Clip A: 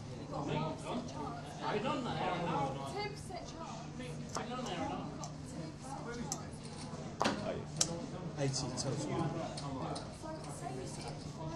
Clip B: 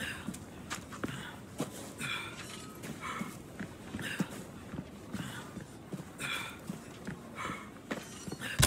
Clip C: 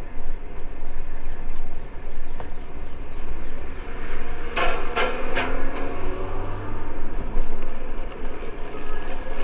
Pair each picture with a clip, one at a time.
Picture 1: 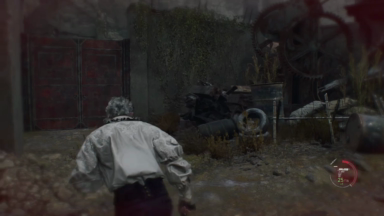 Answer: B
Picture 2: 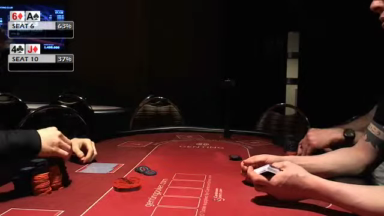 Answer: A